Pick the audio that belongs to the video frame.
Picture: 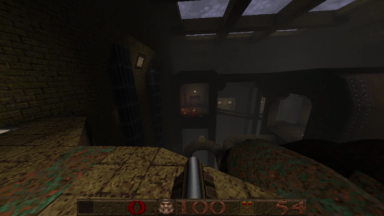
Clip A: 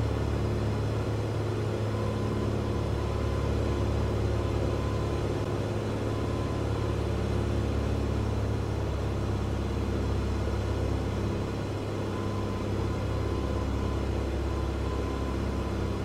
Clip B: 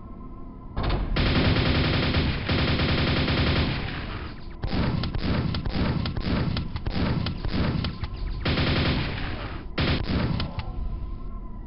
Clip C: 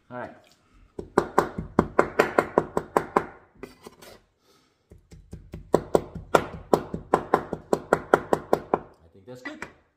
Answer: B